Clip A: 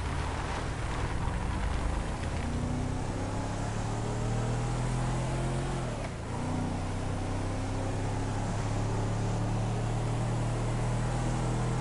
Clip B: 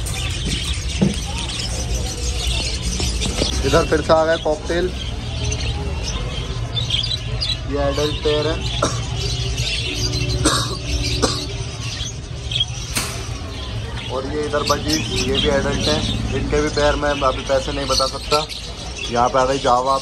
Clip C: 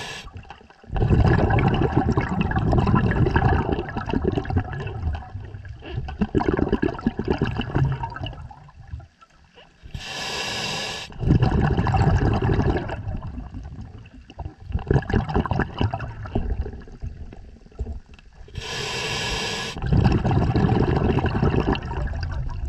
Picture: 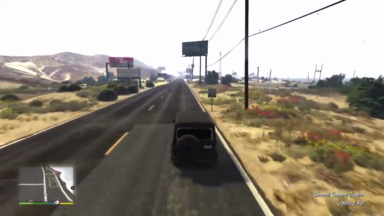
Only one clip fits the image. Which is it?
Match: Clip A